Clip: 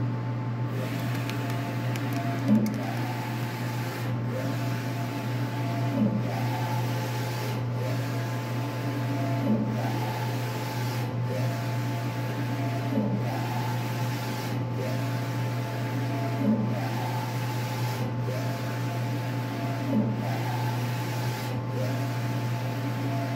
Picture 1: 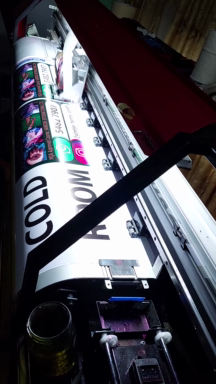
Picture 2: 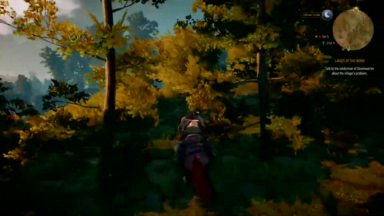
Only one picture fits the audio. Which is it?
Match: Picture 1